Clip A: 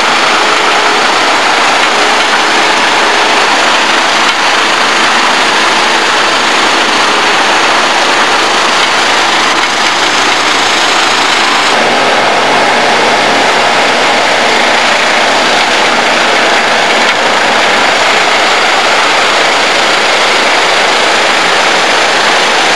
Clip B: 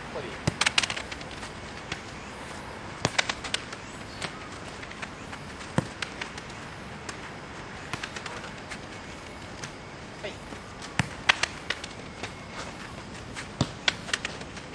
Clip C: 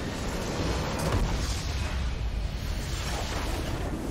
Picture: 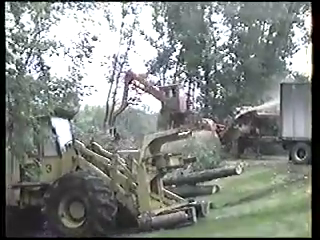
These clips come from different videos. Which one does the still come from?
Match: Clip A